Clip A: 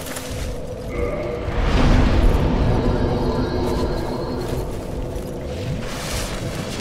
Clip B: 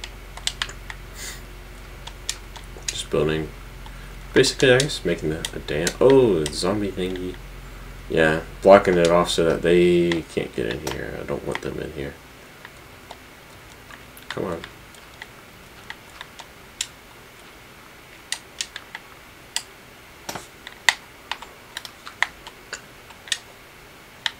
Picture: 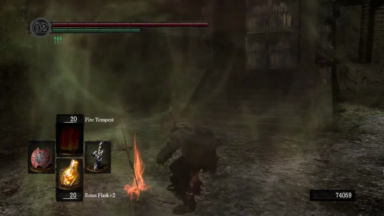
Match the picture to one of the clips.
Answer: A